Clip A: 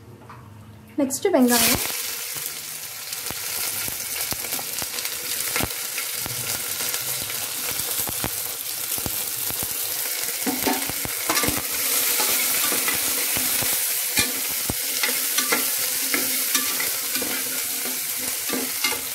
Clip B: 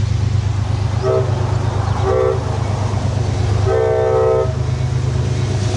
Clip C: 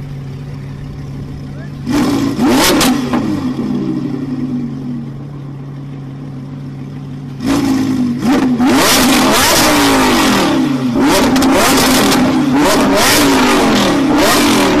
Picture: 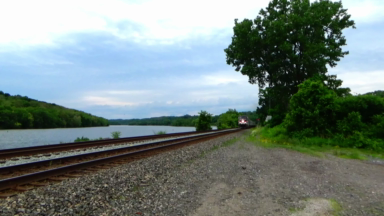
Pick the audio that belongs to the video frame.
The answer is B